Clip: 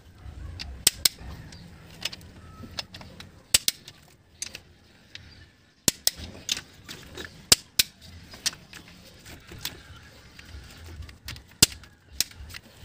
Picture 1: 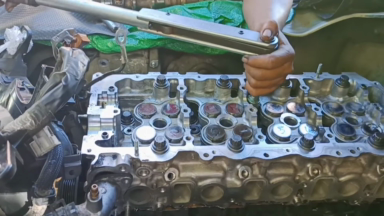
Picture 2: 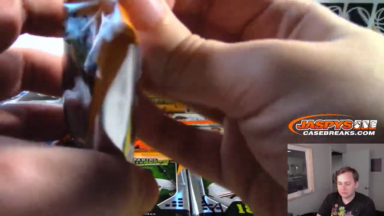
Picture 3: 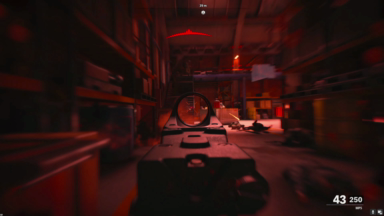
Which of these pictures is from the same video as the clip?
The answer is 1